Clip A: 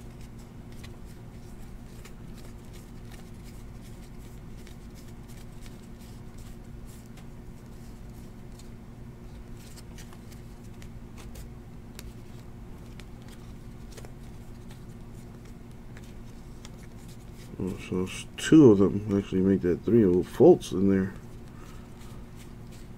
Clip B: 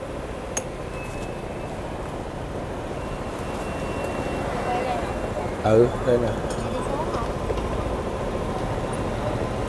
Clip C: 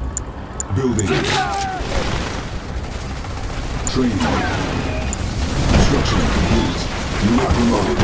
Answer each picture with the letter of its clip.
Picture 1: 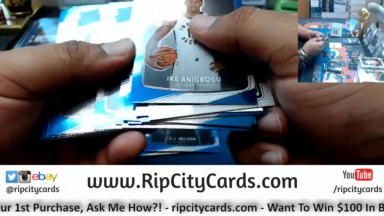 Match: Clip A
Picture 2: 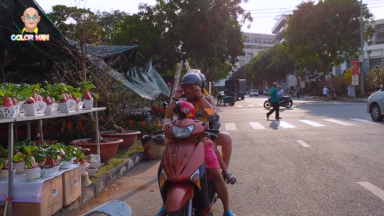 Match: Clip B